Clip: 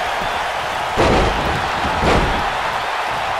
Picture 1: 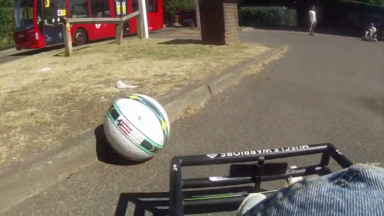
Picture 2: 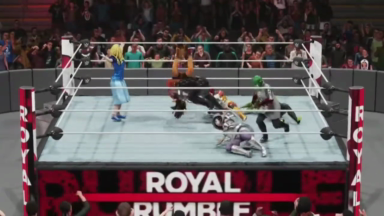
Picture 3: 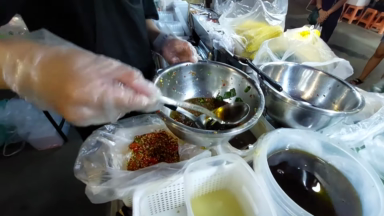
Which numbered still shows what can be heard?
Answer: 2